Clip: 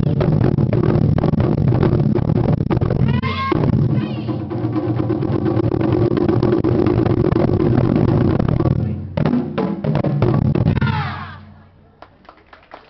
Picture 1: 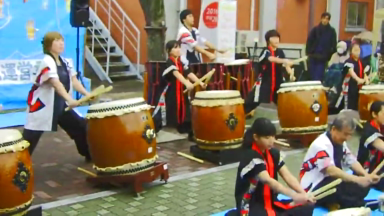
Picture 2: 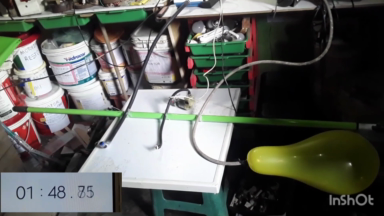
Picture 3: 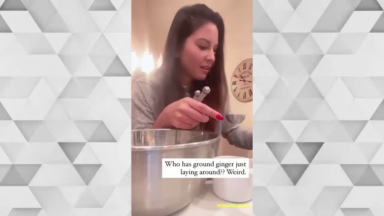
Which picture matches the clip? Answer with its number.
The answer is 1